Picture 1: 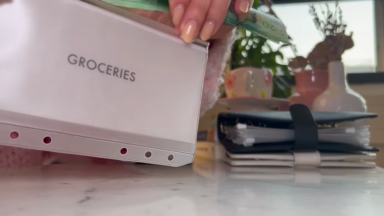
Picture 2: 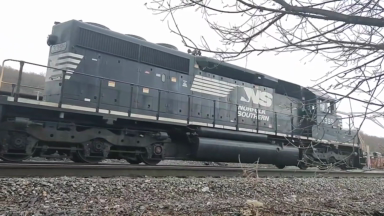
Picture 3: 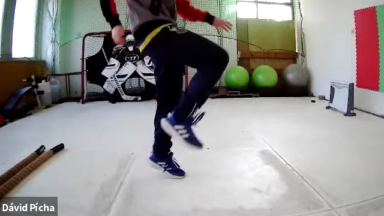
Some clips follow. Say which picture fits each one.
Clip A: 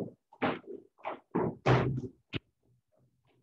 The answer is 3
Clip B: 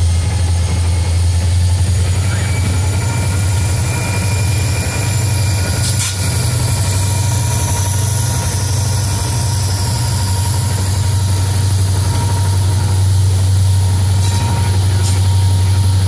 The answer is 2